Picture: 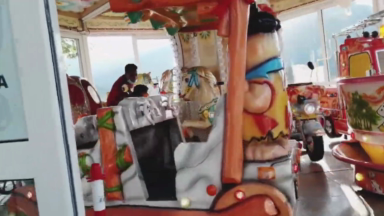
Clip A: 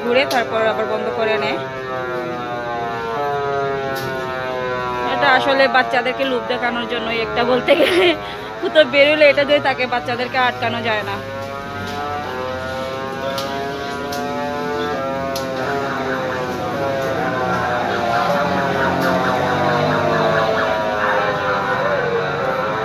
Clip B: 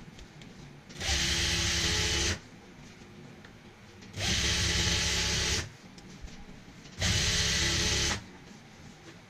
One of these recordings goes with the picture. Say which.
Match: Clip A